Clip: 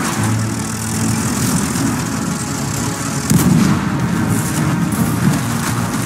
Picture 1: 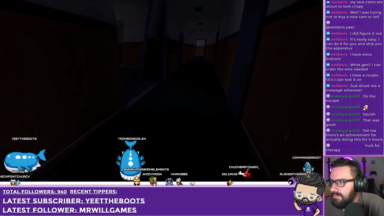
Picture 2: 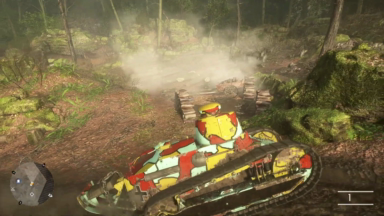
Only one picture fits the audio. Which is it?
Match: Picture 2